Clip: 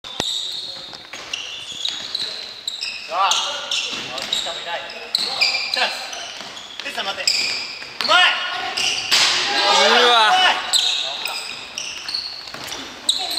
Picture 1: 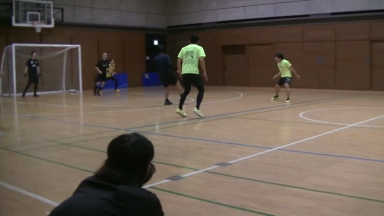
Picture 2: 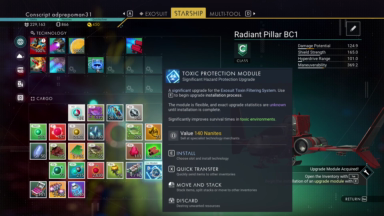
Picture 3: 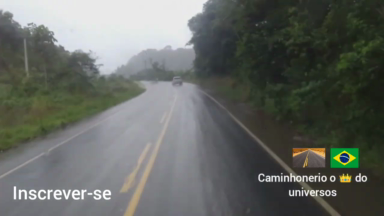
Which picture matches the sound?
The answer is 1